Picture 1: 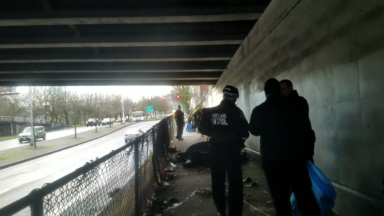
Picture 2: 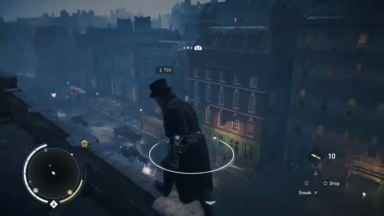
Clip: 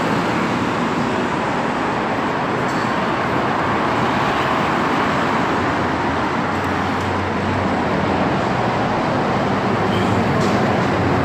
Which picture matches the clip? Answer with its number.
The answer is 1